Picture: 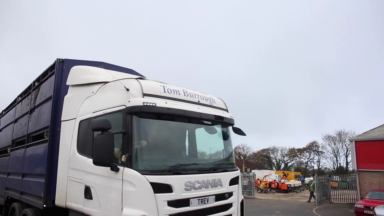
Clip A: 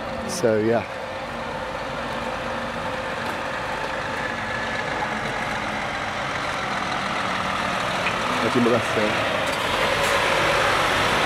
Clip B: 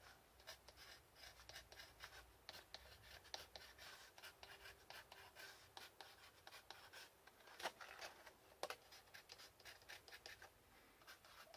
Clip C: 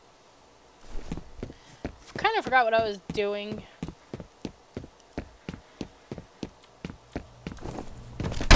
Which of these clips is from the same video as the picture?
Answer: A